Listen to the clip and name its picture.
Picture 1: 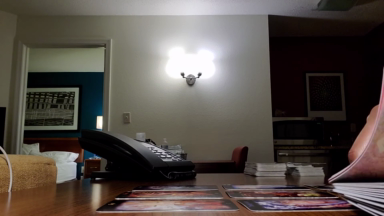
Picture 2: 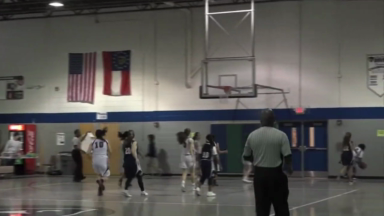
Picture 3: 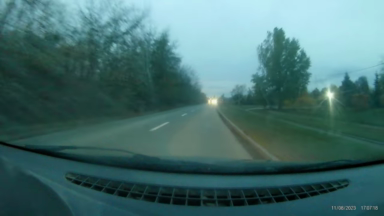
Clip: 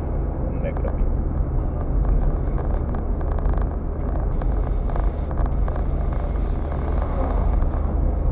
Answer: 3